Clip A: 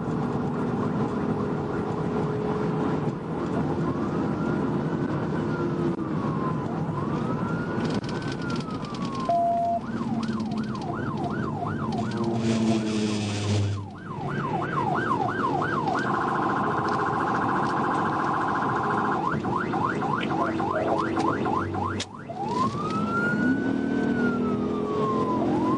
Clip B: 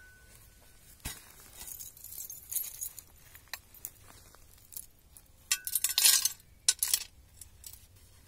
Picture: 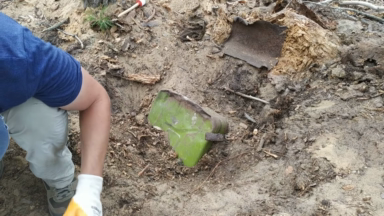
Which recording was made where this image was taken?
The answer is B